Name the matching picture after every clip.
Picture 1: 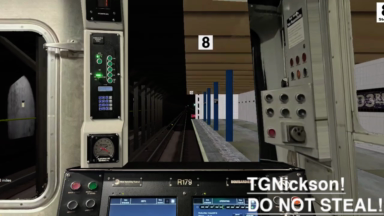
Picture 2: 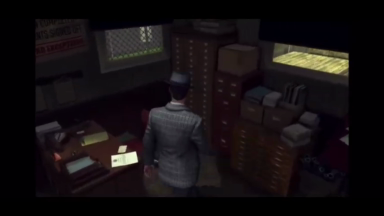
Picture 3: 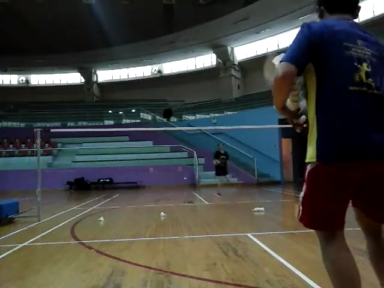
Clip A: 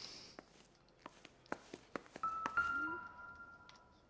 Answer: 2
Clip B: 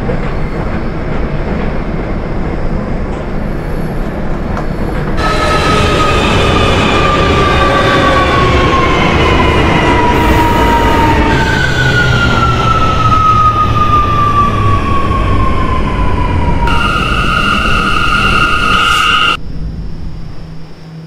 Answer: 1